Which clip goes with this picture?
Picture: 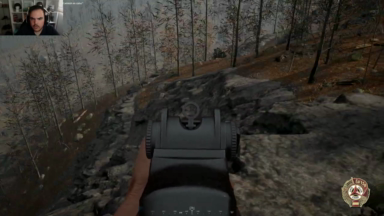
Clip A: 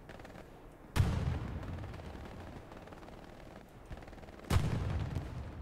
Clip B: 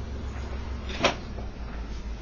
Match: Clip A